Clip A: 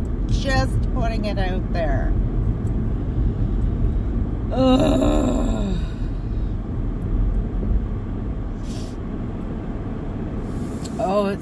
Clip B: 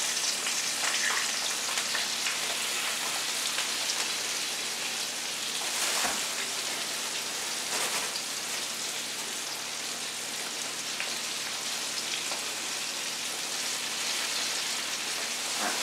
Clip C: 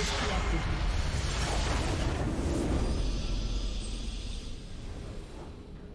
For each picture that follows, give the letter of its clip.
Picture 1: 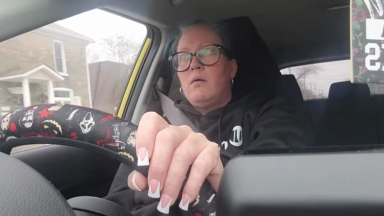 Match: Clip A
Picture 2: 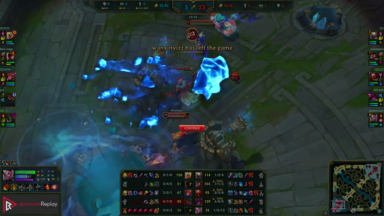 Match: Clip C